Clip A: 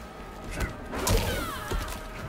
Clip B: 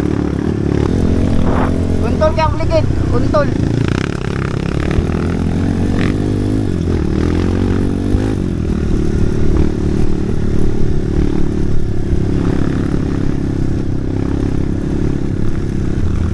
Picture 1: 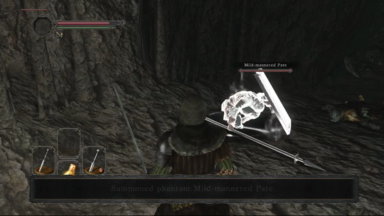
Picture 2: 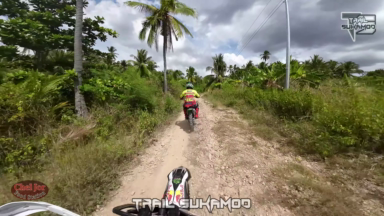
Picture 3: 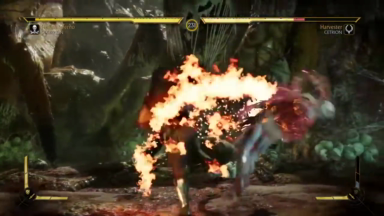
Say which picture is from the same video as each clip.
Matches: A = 3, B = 2